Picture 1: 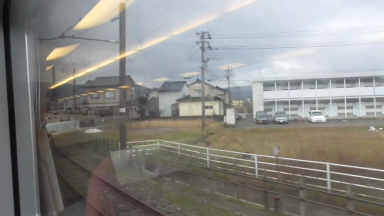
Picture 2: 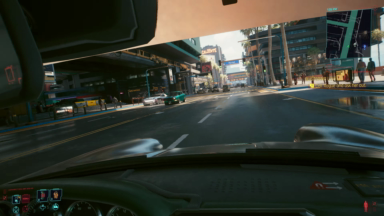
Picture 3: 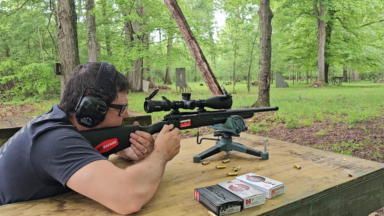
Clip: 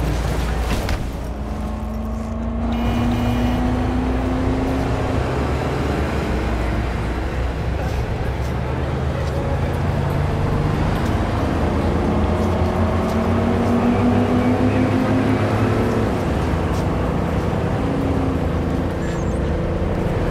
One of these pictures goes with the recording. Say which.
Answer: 2